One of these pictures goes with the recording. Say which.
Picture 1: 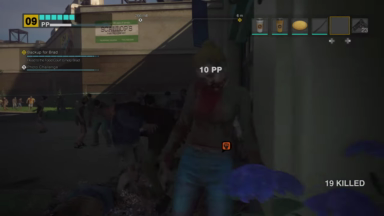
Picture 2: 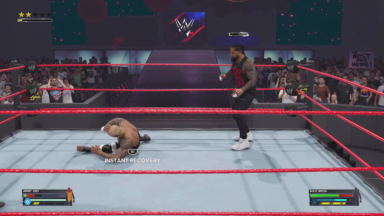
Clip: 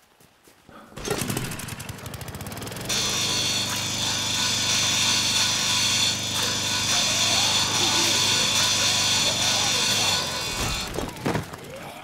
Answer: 1